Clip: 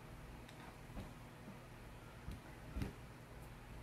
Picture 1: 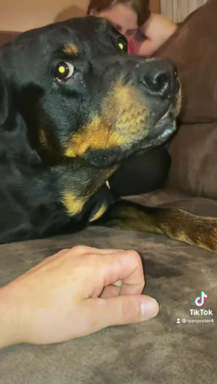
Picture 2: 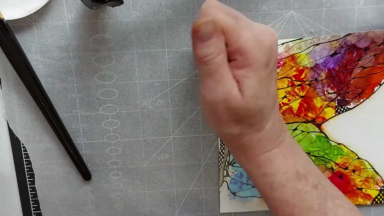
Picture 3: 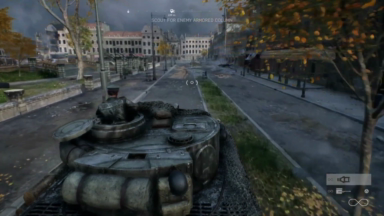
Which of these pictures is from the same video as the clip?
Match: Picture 2